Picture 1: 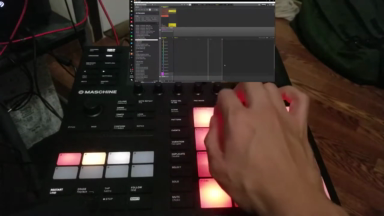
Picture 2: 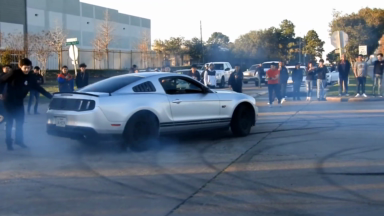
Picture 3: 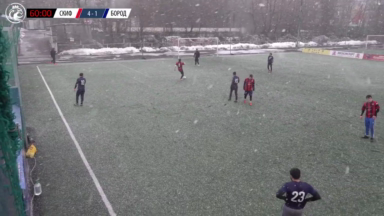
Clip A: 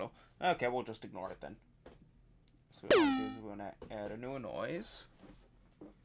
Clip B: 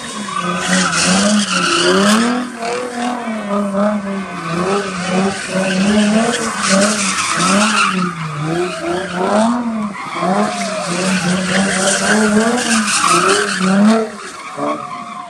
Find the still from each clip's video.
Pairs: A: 1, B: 2